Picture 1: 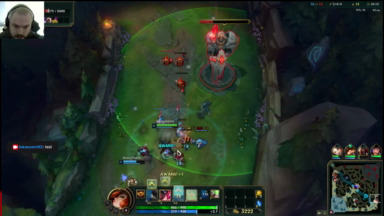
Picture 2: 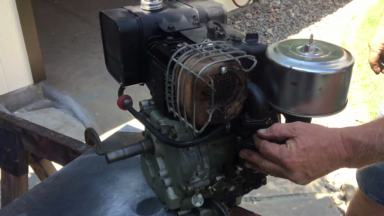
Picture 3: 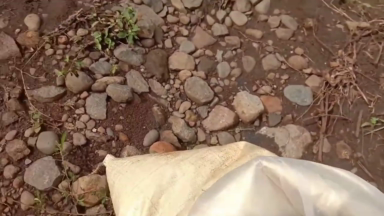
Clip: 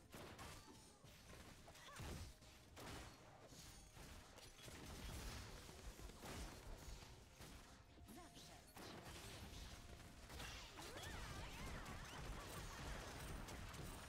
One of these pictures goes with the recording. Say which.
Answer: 1